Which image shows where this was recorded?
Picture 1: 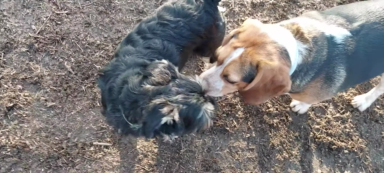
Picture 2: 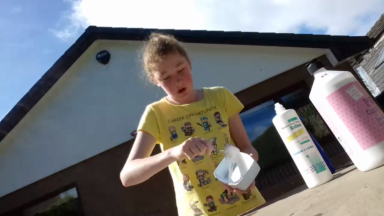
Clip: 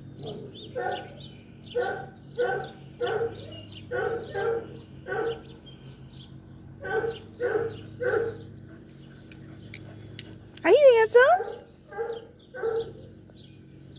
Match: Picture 1